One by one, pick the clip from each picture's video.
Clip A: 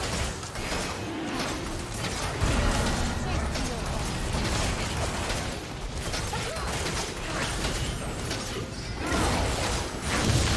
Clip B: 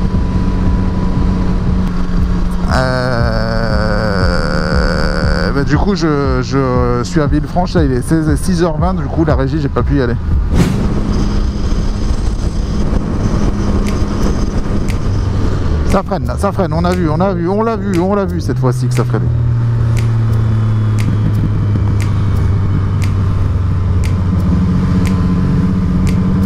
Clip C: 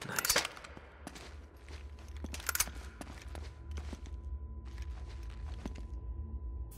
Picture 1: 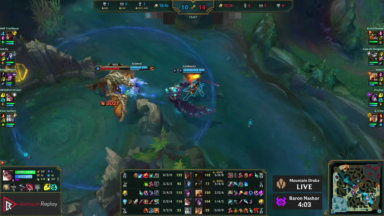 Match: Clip A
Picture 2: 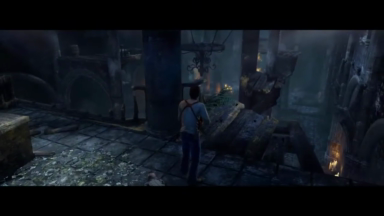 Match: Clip C